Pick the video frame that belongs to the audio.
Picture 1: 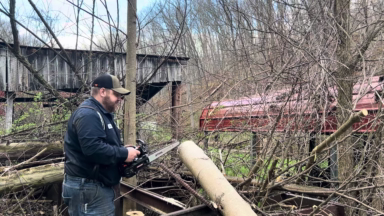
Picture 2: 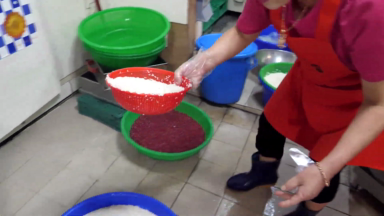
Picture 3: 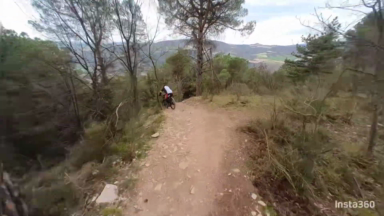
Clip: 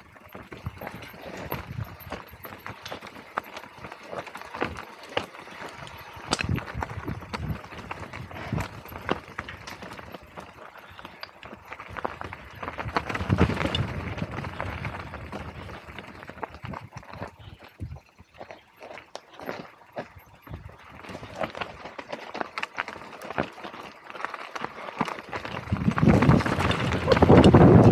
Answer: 3